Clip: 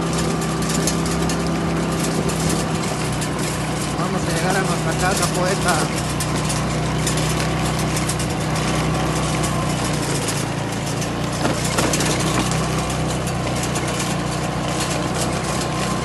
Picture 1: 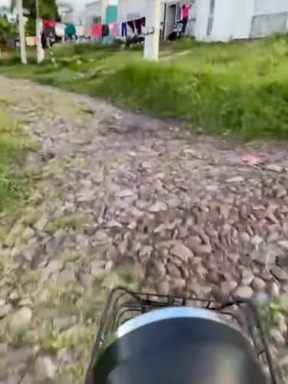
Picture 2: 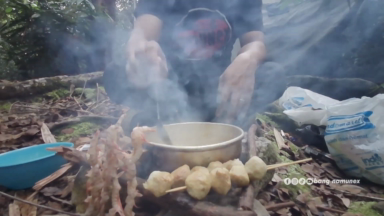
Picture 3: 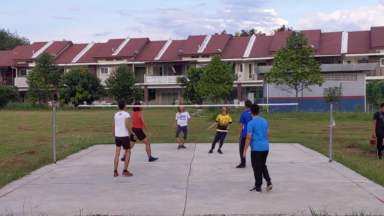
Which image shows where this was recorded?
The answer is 1